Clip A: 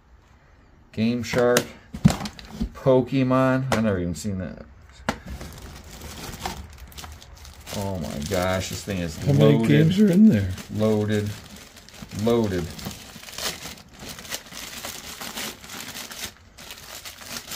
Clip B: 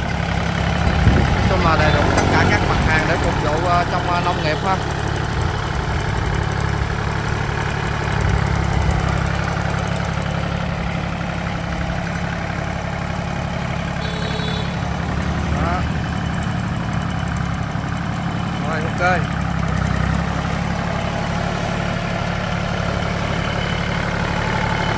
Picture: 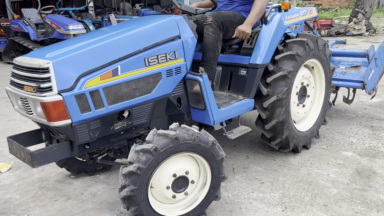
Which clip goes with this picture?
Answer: B